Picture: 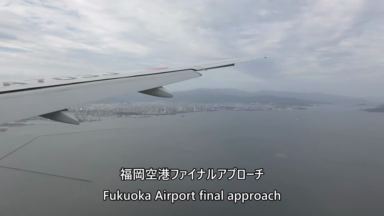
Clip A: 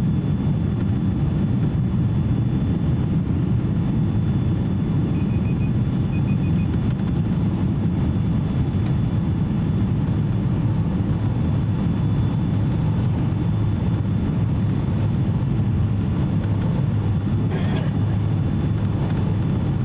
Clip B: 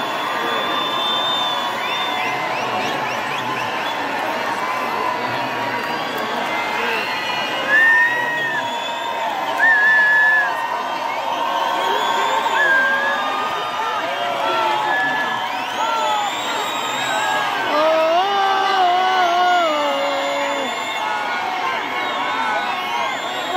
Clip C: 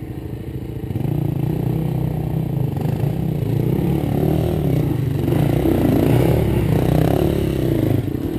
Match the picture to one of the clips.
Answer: A